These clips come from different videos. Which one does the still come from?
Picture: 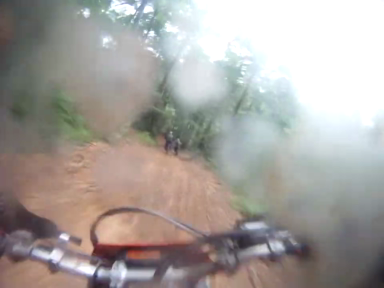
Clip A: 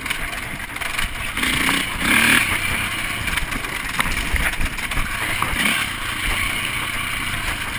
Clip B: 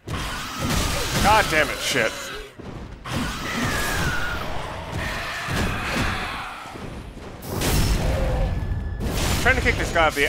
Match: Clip A